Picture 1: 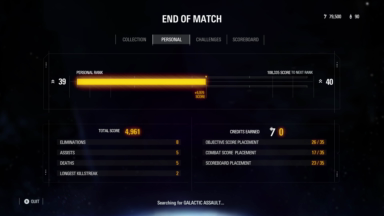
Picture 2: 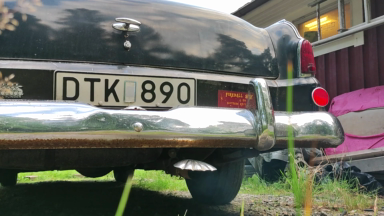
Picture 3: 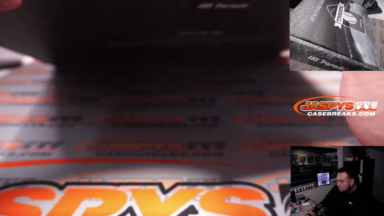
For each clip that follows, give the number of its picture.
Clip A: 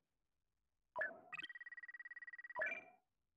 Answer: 1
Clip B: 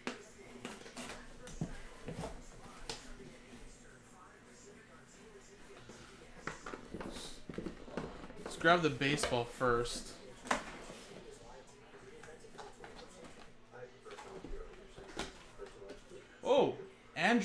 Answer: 3